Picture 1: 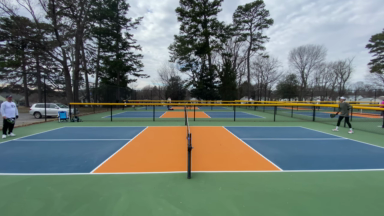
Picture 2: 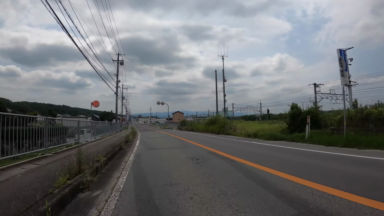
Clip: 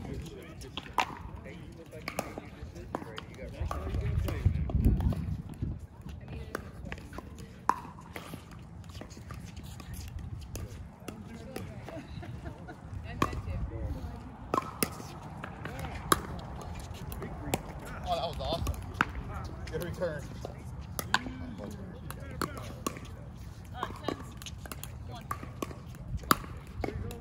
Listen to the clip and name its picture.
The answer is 1